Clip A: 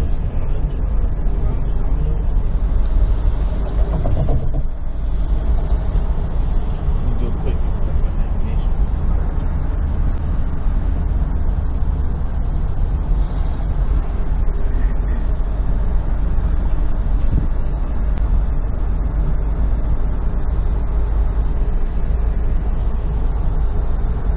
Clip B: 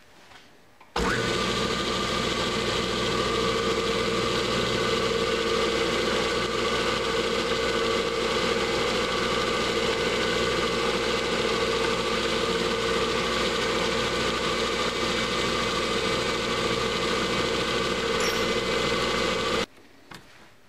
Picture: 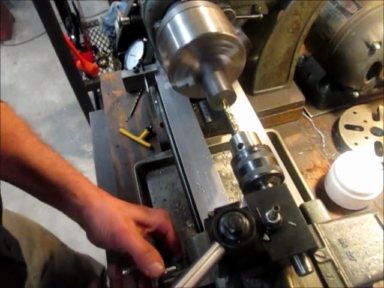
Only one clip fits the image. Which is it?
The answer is B